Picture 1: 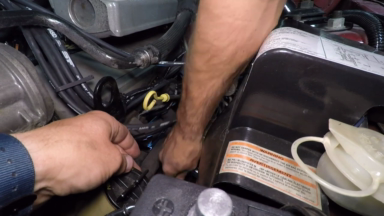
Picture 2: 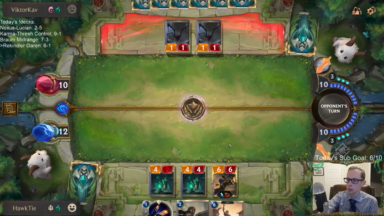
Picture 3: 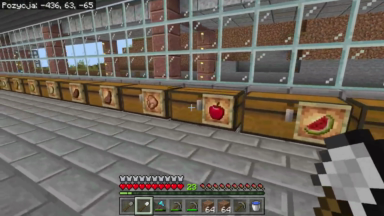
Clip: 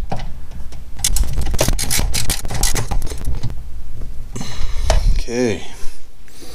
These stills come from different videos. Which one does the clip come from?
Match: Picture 1